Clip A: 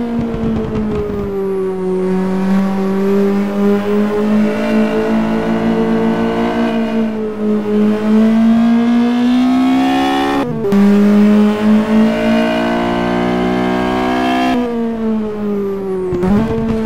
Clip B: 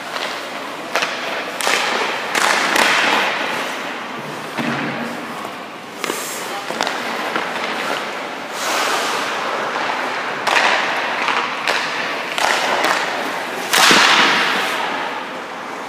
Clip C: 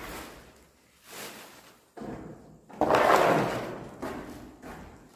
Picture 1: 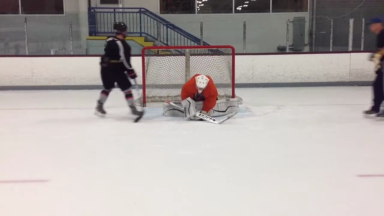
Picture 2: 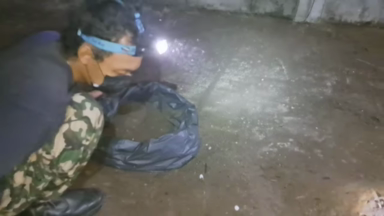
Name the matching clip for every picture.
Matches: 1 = B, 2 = C